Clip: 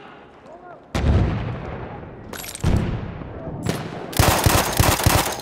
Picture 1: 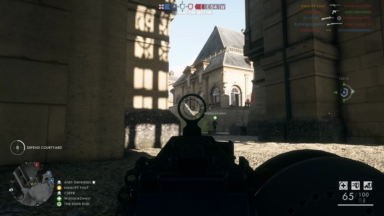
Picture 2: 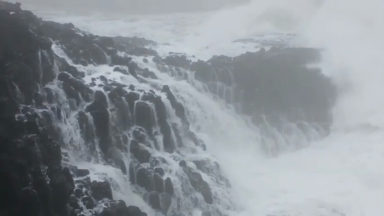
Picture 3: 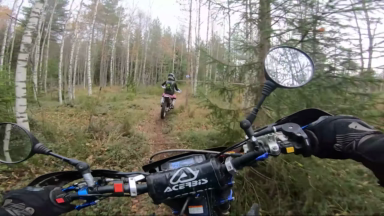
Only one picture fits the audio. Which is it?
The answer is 1